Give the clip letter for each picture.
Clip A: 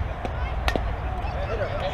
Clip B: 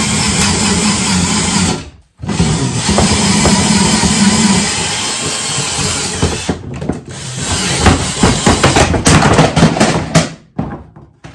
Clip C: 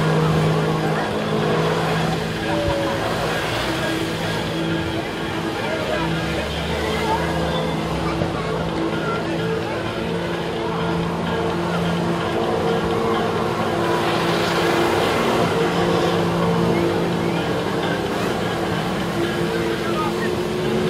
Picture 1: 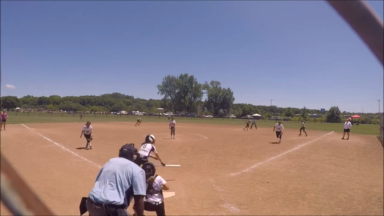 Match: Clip A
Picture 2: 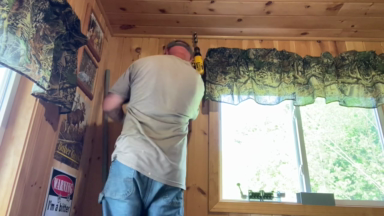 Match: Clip B